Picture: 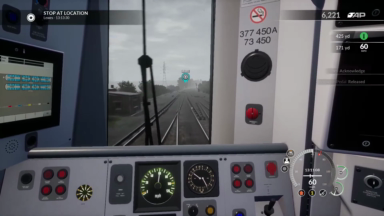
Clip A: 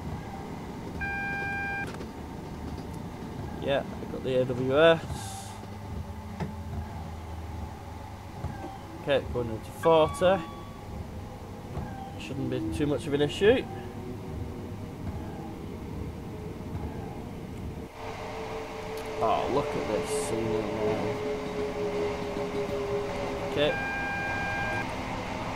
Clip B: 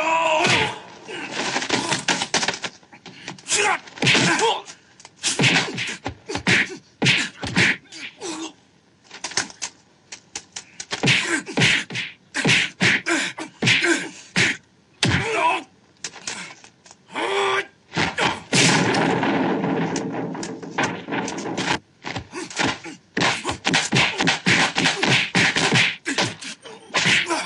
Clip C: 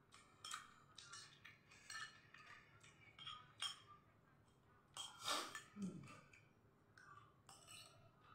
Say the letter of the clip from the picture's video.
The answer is A